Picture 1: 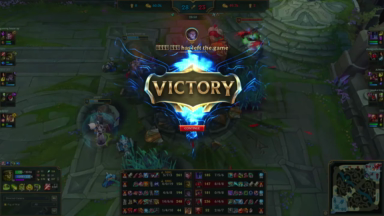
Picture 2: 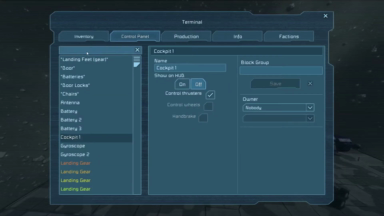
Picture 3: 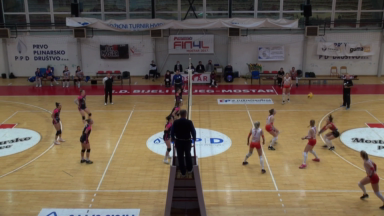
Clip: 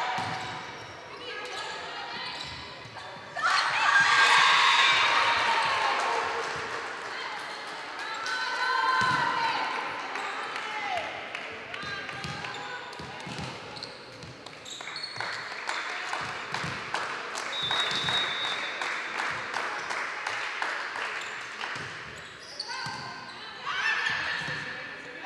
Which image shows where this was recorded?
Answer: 3